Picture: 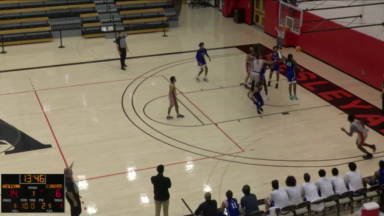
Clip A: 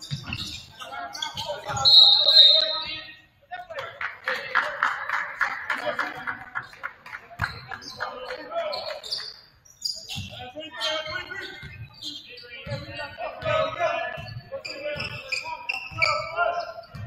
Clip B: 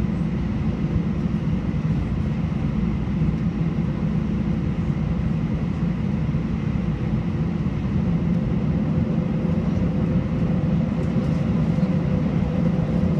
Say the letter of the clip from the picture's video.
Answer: A